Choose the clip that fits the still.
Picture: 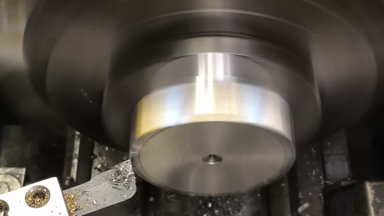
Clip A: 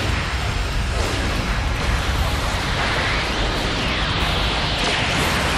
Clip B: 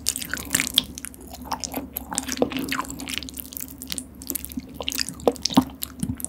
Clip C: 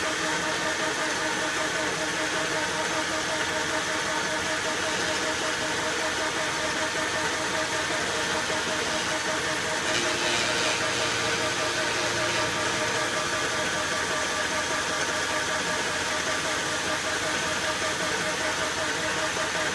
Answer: C